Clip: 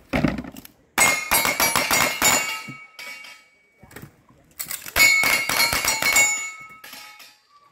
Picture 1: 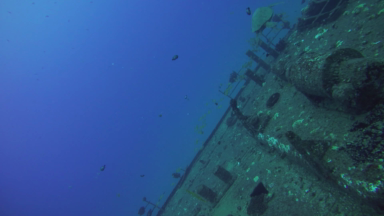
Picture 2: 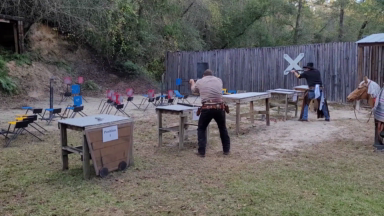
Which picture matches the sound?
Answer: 2